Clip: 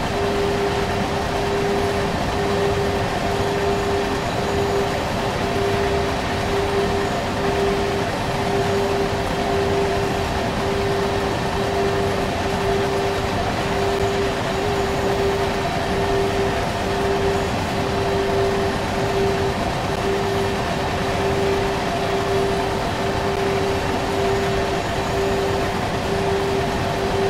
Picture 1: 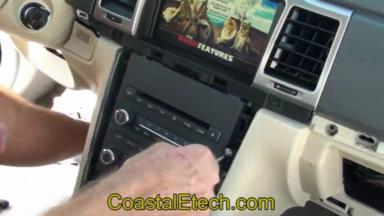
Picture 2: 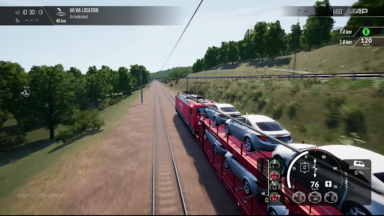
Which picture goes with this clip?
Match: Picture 2